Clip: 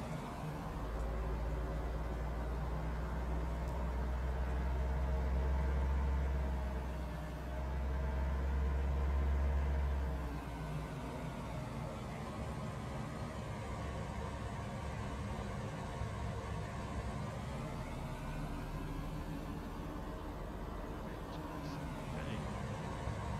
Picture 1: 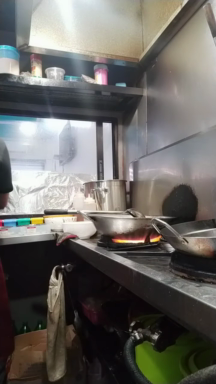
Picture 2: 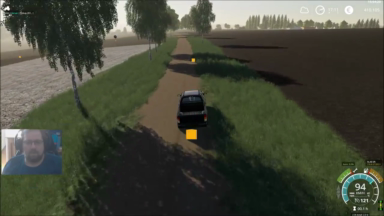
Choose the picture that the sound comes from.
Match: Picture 2